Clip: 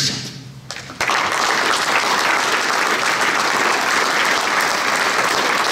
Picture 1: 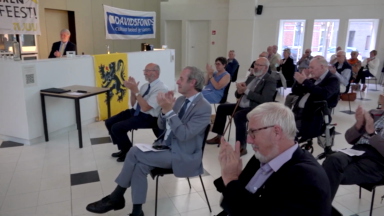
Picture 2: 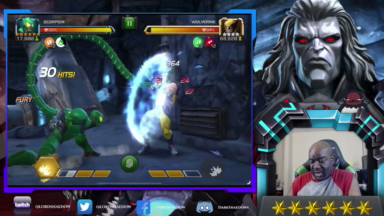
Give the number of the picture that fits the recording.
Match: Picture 1